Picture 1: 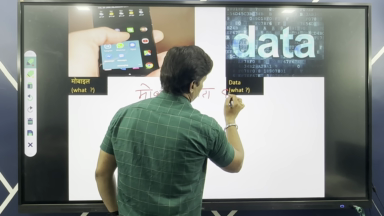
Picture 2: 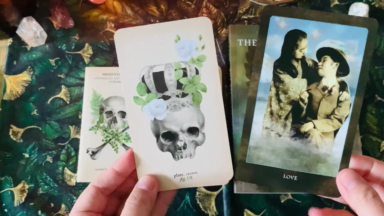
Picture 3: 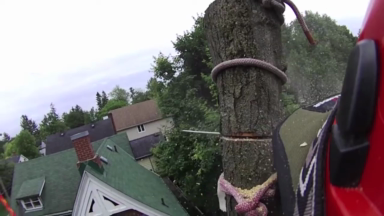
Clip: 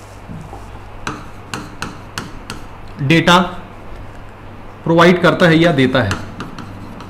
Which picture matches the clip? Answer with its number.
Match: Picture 1